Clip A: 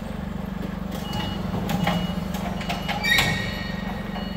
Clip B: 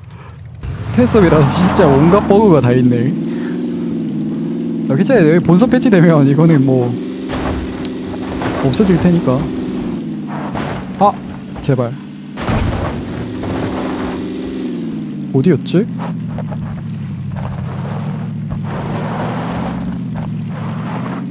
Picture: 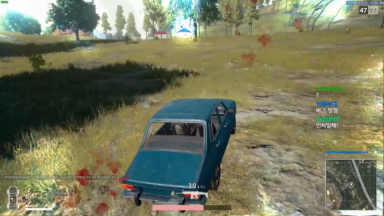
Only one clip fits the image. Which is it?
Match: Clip B